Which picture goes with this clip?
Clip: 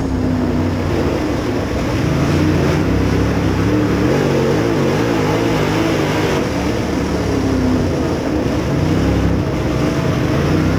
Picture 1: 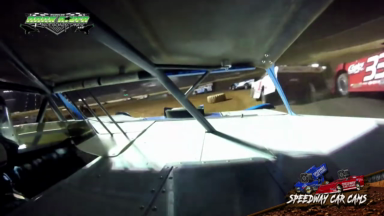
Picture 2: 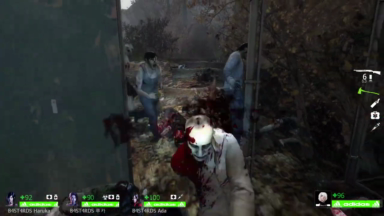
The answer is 1